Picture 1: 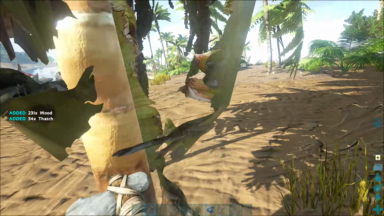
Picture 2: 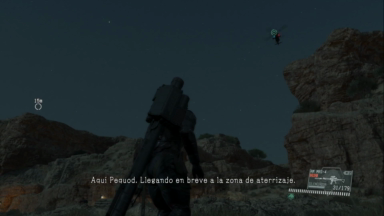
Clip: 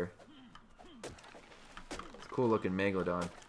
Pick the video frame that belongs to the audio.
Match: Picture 1